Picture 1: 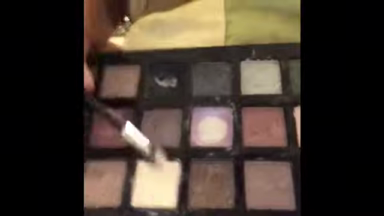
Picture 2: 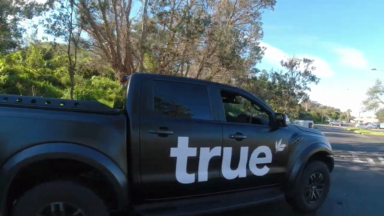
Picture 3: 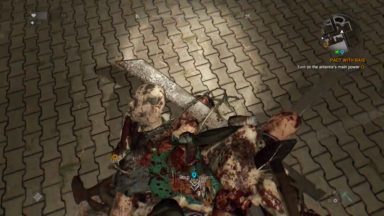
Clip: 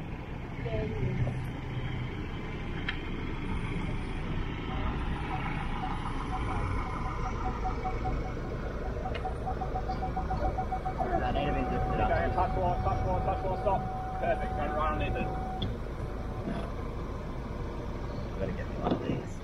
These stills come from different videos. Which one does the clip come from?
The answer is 2